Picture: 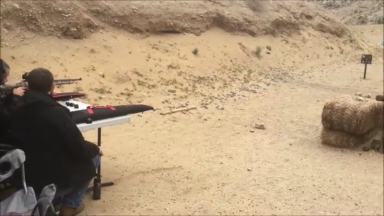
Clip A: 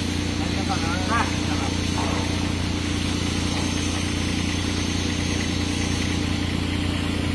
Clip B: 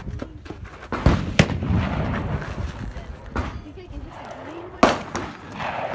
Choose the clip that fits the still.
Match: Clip B